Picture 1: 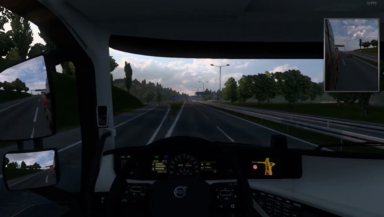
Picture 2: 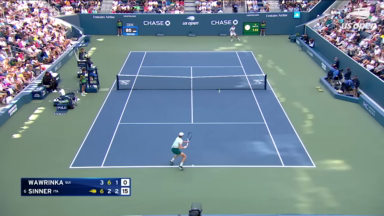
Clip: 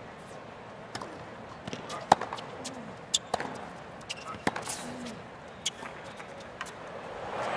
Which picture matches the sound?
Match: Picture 2